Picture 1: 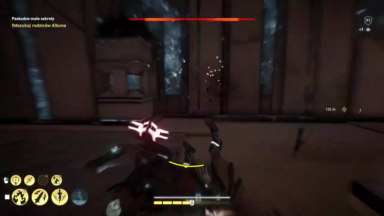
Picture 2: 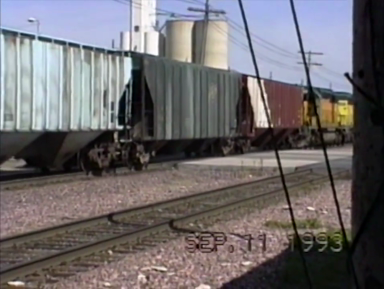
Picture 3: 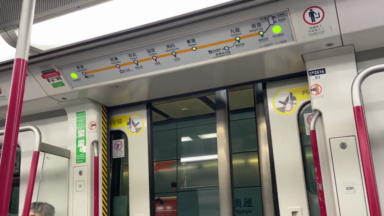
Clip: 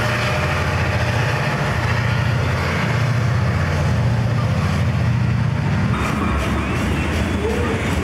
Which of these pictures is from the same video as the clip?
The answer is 2